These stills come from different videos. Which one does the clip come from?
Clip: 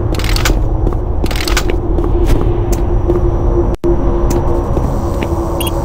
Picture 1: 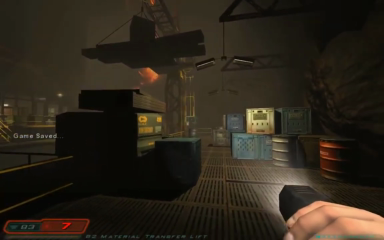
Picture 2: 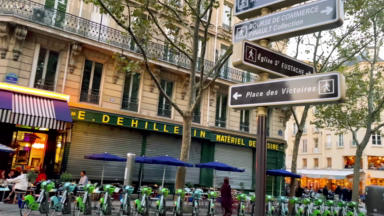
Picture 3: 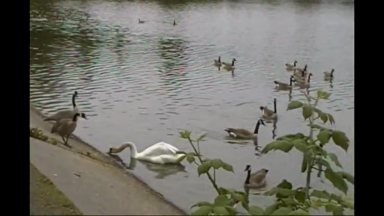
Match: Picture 1